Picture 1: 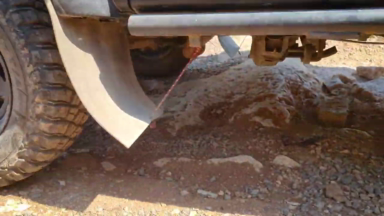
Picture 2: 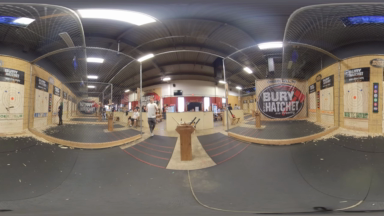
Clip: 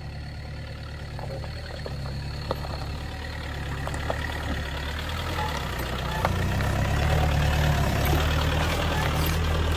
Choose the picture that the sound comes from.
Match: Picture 1